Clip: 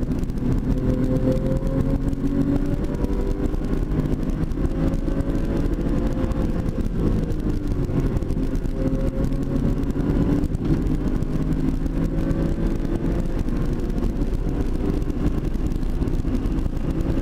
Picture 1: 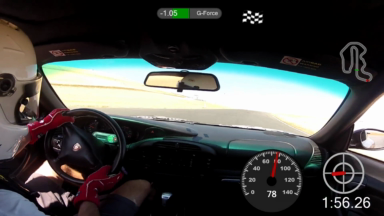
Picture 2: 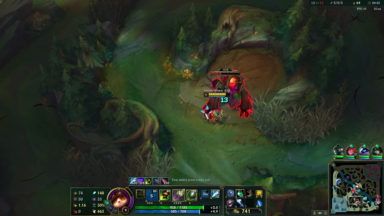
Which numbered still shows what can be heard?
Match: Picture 1